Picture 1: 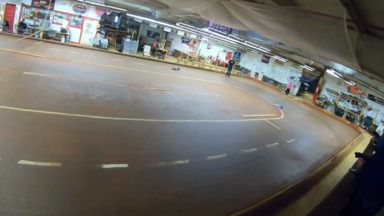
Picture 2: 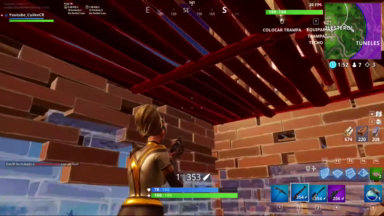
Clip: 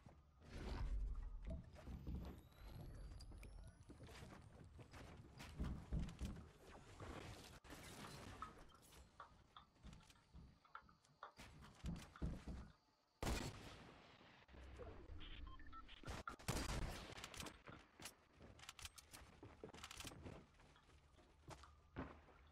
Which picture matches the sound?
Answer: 2